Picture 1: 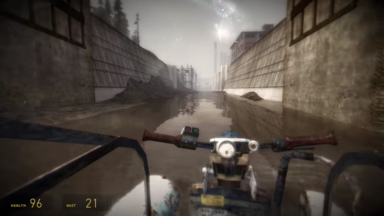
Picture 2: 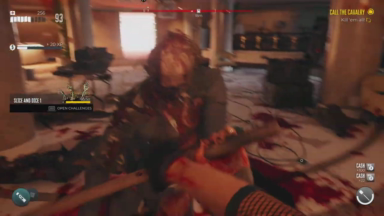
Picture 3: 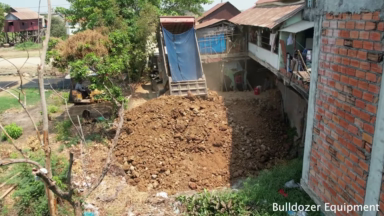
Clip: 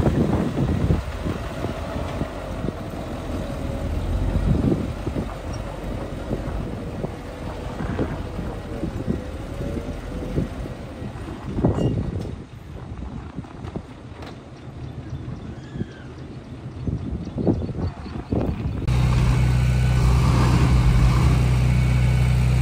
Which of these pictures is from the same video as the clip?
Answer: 3